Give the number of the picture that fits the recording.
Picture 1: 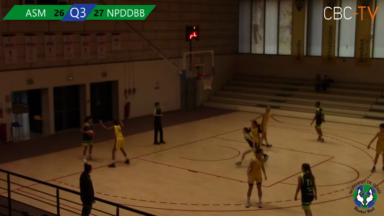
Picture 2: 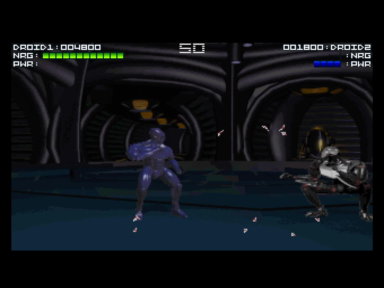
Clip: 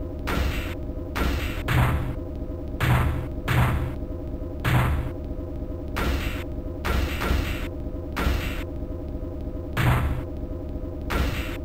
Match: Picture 2